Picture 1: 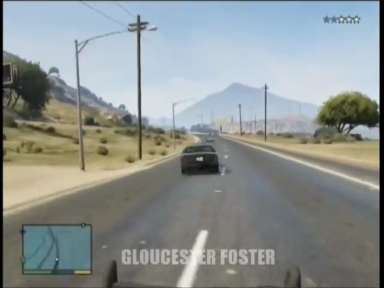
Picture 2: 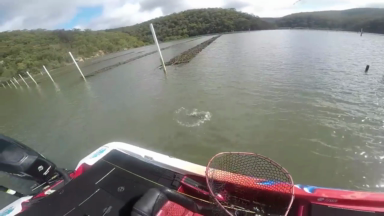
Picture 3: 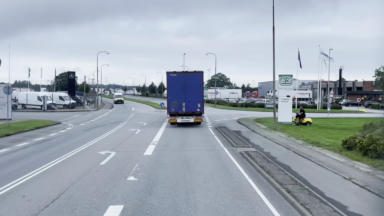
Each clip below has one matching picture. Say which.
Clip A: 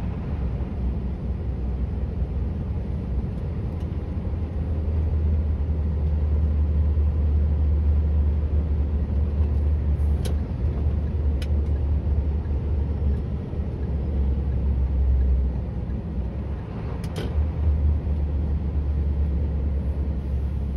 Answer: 3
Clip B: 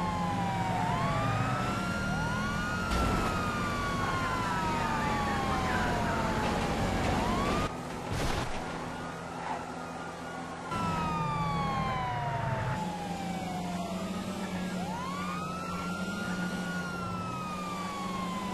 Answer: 1